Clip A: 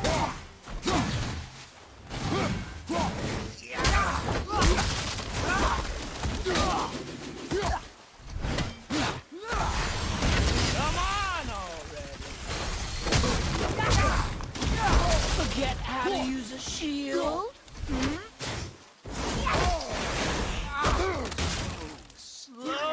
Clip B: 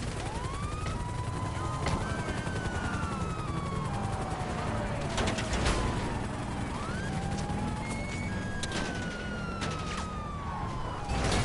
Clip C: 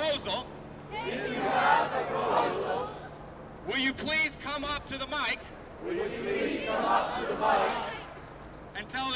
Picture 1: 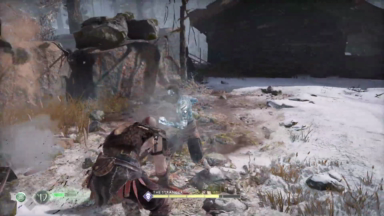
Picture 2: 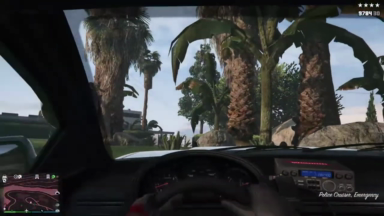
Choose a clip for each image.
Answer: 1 A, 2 B